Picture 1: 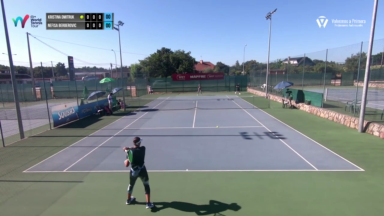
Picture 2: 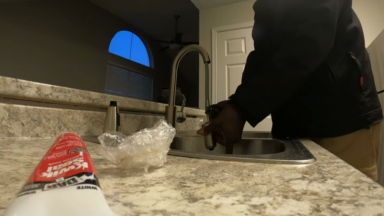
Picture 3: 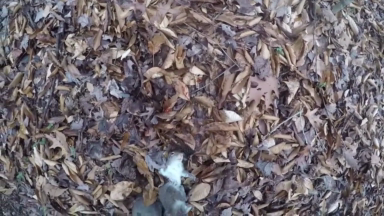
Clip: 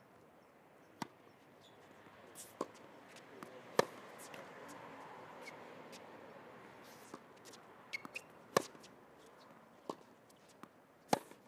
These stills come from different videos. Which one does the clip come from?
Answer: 1